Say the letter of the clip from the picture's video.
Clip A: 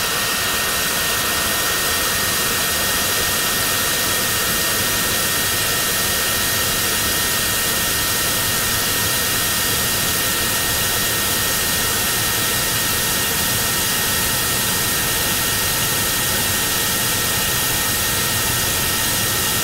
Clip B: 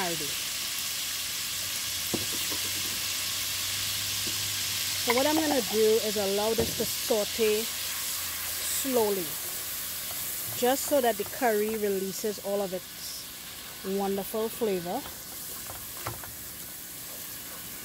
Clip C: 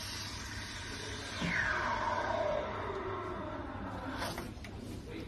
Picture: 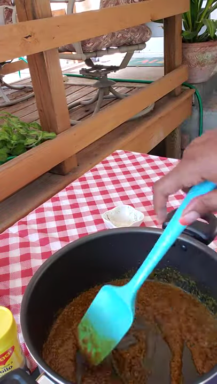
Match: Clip B